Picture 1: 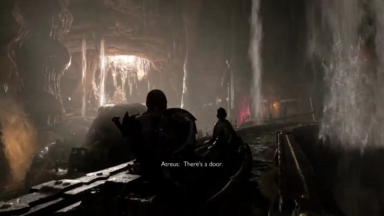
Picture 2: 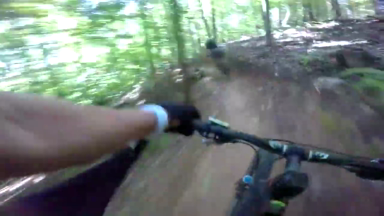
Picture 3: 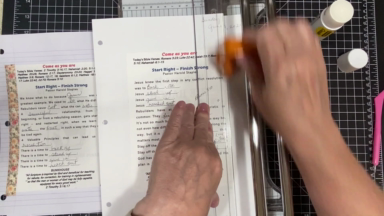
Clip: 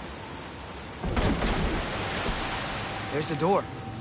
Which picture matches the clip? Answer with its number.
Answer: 1